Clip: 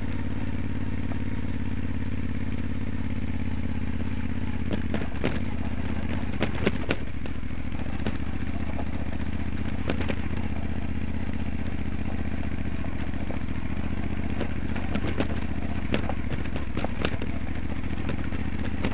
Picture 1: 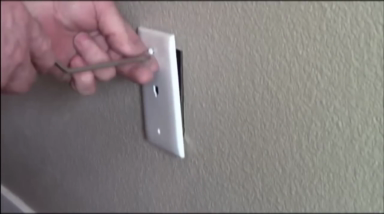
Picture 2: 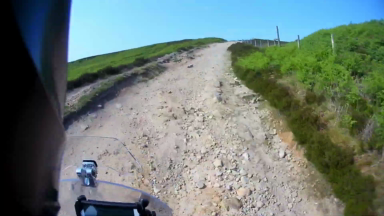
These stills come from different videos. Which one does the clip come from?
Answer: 2